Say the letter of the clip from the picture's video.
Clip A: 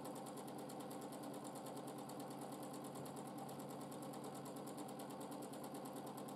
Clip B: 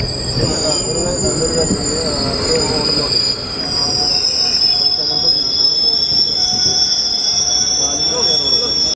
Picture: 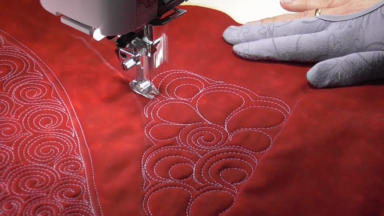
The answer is A